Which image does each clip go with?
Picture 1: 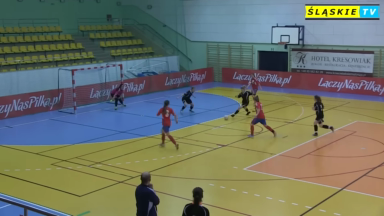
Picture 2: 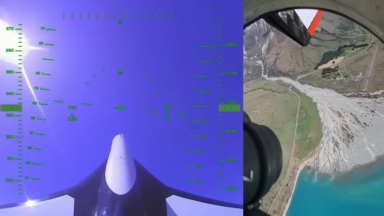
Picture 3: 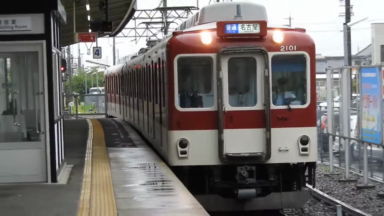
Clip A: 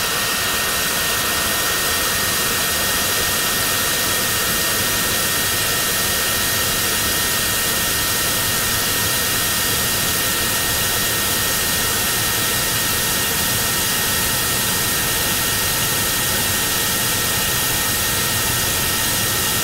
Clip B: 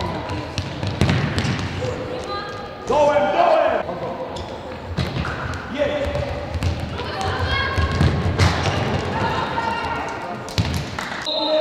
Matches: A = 2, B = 1